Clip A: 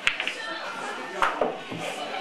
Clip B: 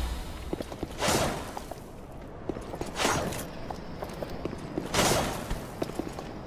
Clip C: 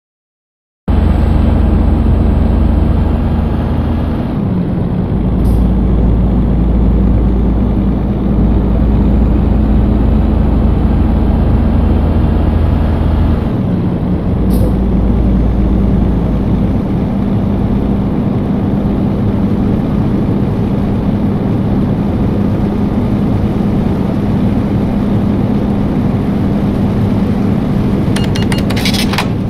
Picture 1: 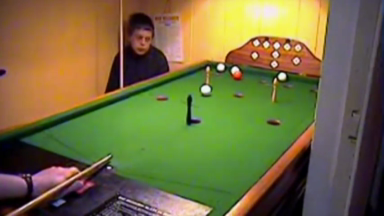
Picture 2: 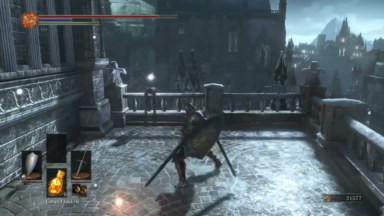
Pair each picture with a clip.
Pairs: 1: A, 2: B